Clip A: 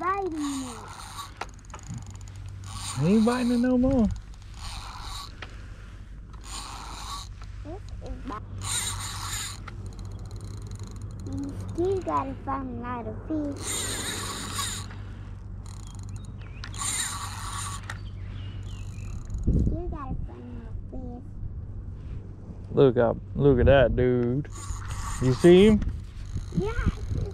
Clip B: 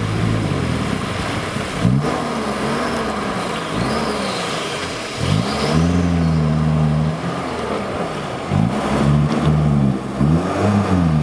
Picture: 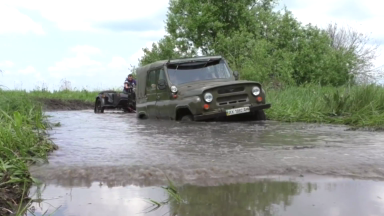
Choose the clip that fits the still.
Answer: B